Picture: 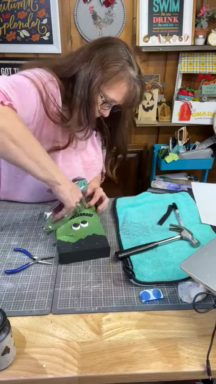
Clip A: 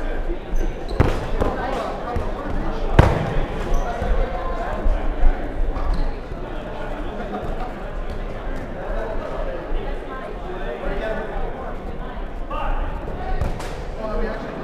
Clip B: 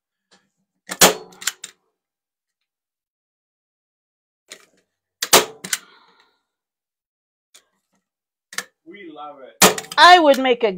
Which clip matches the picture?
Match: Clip B